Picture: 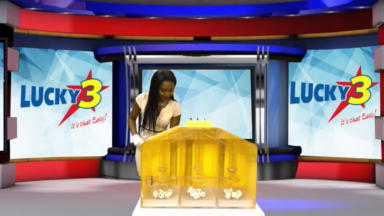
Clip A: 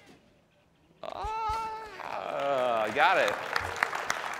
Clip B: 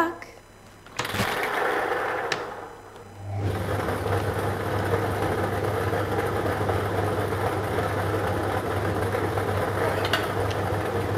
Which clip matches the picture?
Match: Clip B